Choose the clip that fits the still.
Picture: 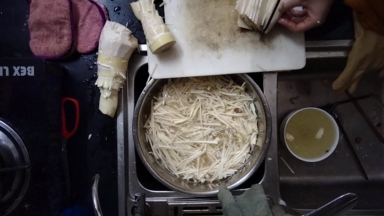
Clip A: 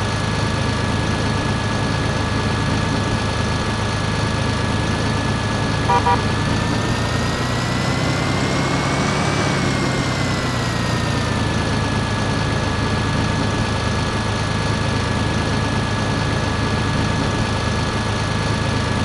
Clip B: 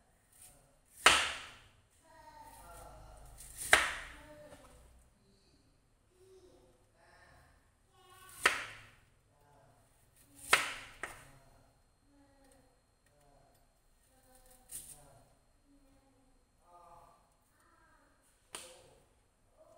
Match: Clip B